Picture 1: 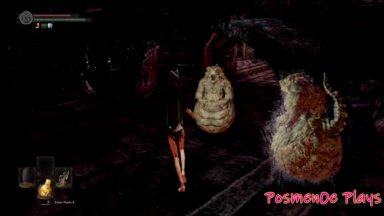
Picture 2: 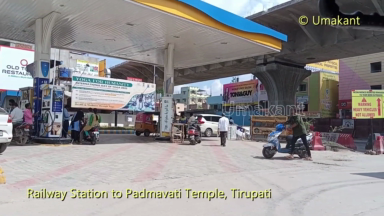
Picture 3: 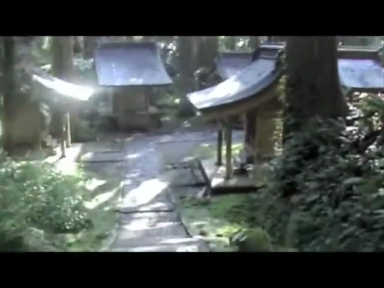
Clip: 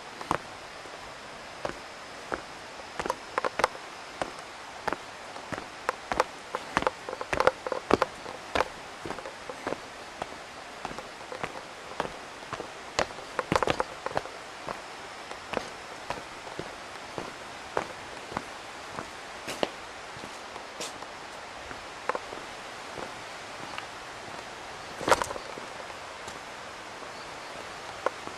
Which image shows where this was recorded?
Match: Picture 3